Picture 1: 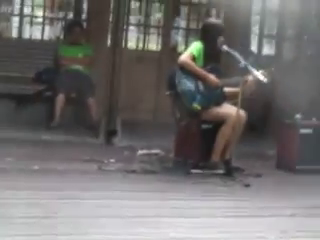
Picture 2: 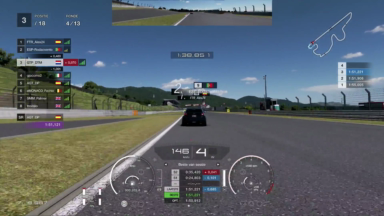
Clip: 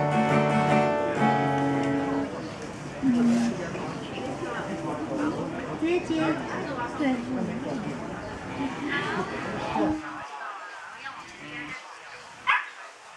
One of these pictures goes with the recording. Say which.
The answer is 1